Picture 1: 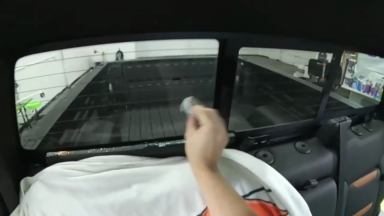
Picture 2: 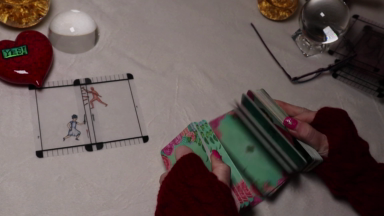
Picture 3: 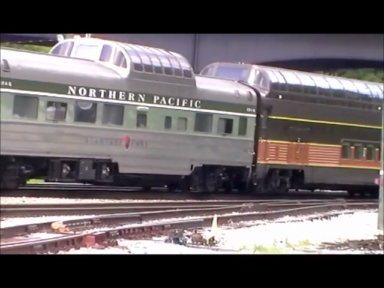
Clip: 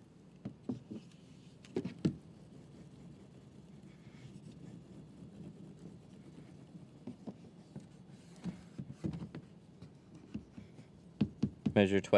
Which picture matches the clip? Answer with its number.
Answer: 1